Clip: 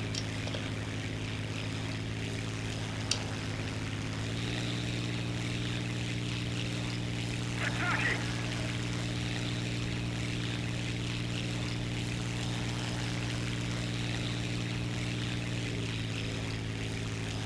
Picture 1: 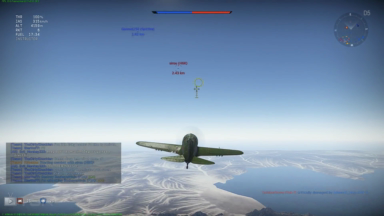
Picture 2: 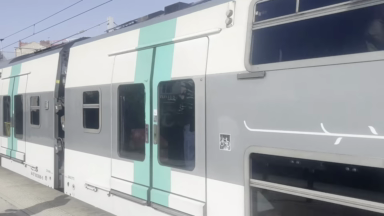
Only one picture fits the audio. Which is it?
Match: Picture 1